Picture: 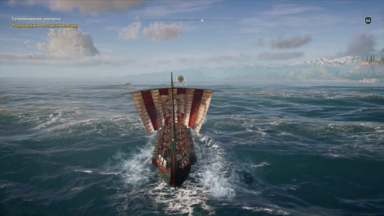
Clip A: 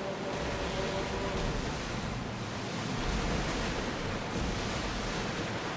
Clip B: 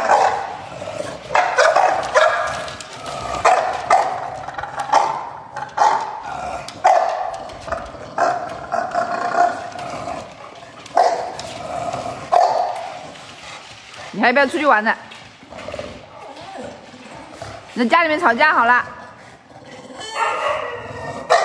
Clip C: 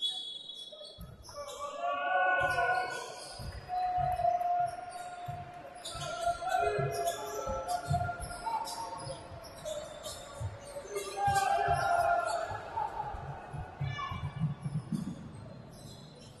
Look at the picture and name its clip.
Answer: A